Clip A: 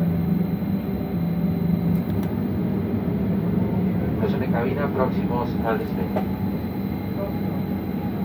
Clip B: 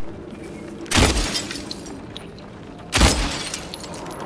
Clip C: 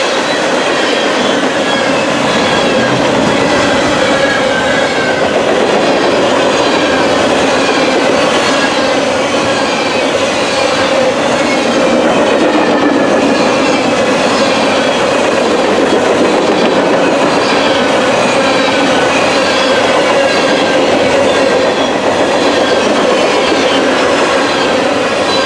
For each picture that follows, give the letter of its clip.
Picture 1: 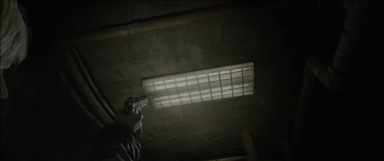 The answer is B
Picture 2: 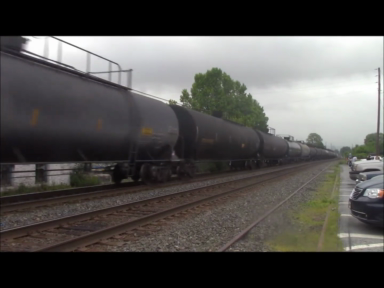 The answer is C